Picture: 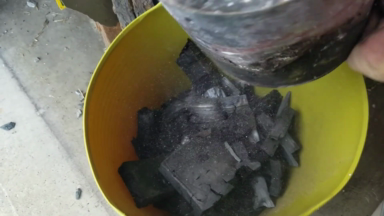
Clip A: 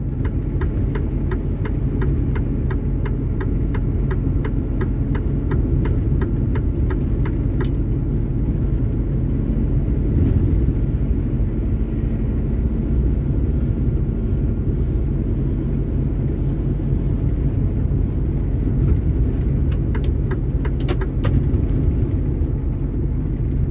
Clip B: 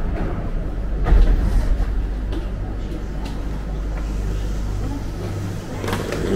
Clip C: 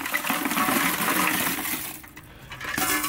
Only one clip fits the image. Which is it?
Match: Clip C